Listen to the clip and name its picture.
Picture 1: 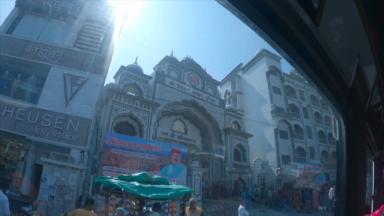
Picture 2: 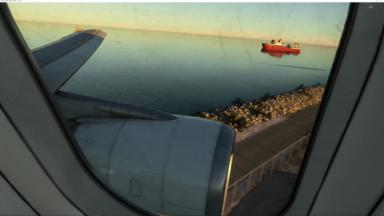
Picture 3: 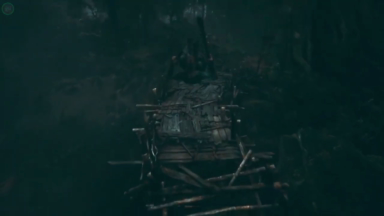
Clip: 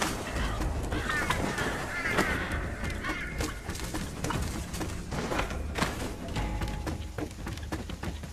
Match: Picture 3